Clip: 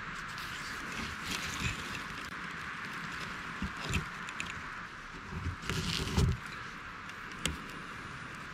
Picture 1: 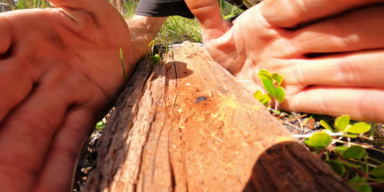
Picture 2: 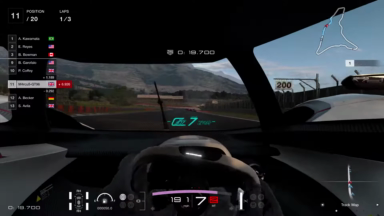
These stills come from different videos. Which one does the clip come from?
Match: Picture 1